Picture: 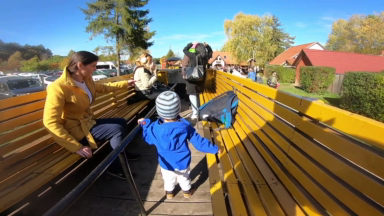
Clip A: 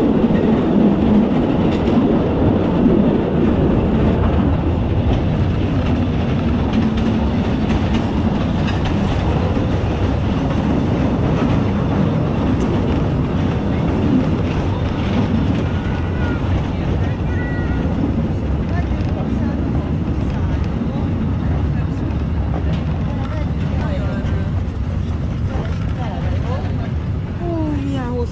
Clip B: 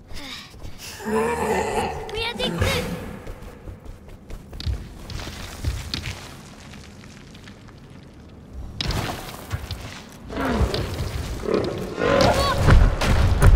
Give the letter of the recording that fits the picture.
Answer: A